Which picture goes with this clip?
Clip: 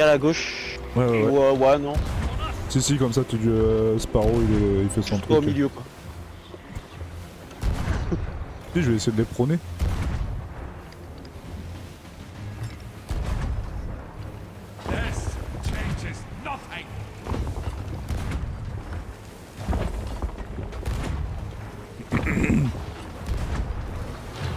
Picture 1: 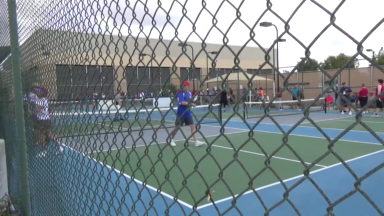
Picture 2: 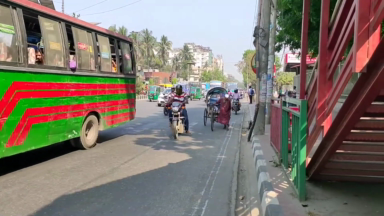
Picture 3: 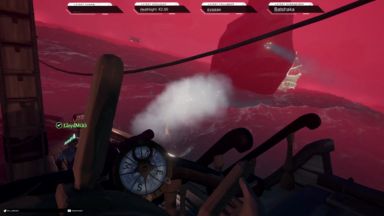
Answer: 3